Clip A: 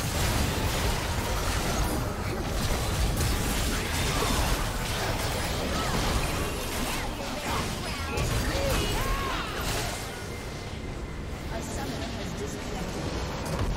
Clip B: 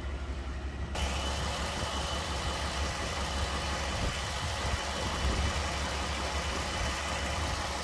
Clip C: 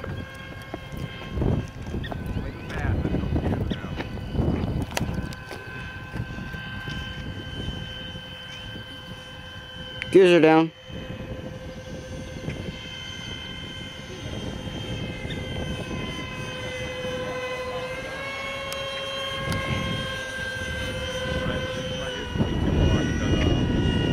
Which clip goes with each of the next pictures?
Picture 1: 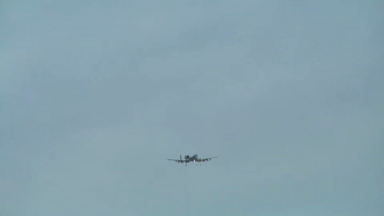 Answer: C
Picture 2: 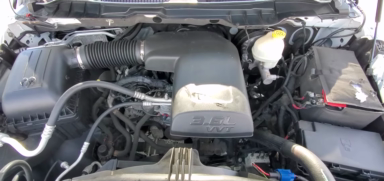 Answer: B